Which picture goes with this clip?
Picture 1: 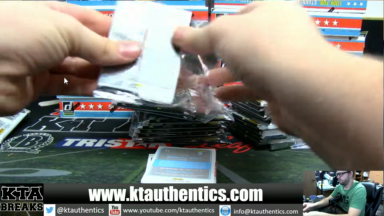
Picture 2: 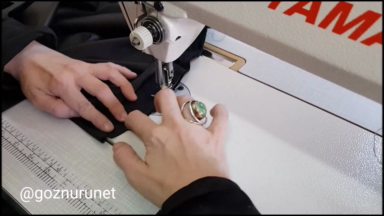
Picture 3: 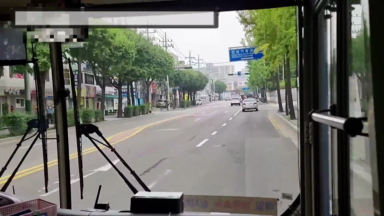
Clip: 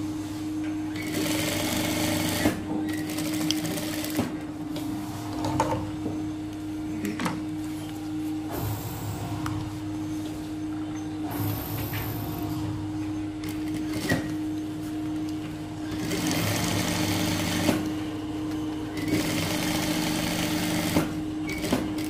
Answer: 2